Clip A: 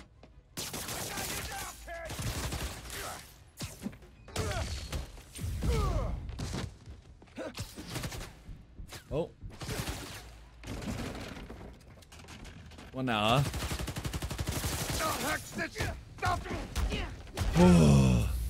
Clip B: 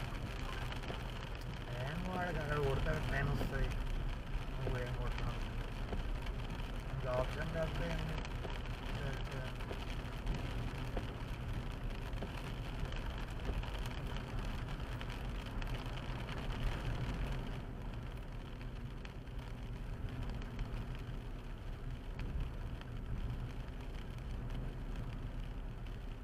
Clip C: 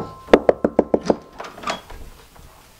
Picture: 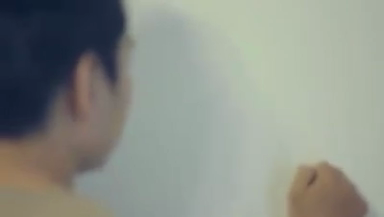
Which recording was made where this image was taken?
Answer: C